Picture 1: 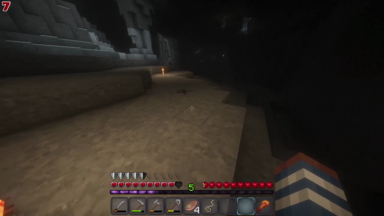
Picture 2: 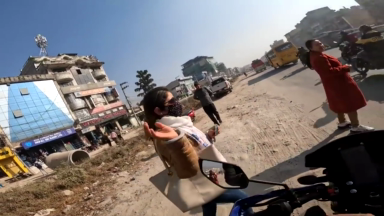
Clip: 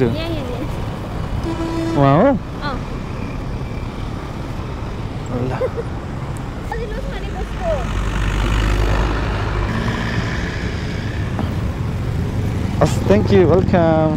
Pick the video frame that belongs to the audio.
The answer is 2